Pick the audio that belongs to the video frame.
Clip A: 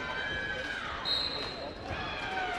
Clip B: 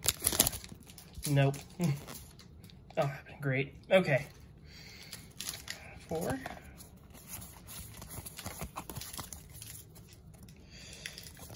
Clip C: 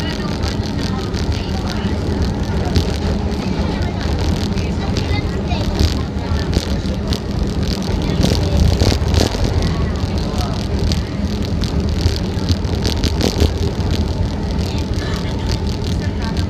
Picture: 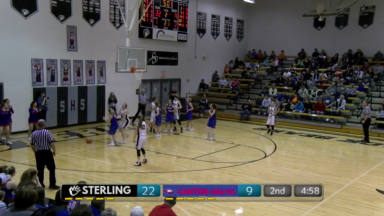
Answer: A